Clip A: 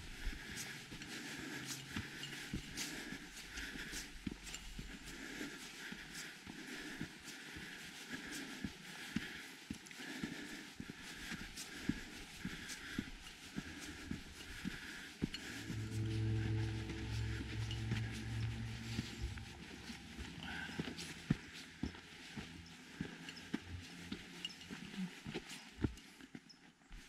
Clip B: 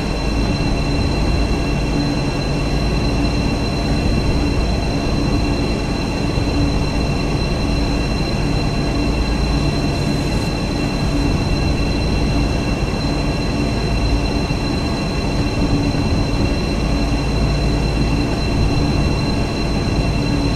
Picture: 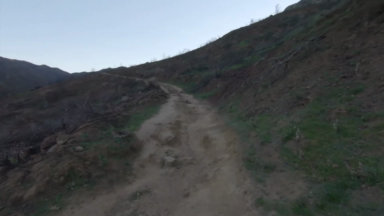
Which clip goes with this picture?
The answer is A